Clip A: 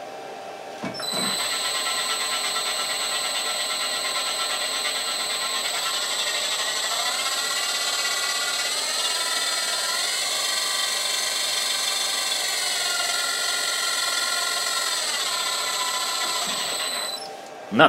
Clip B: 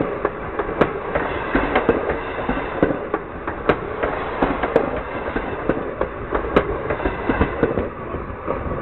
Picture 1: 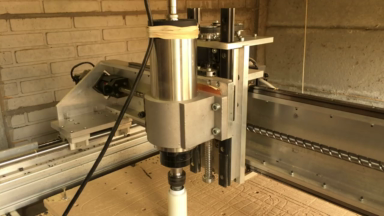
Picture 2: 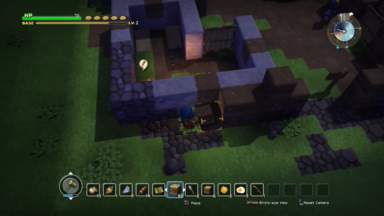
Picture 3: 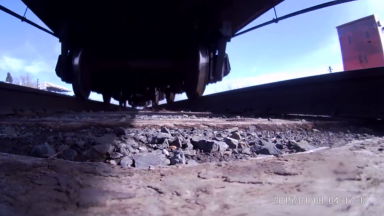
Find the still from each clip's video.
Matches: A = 1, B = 3